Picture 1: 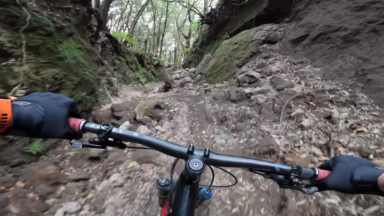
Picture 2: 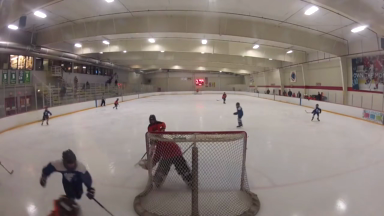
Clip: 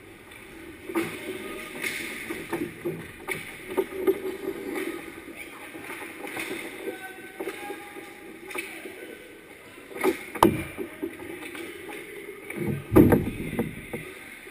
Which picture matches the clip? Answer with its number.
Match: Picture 2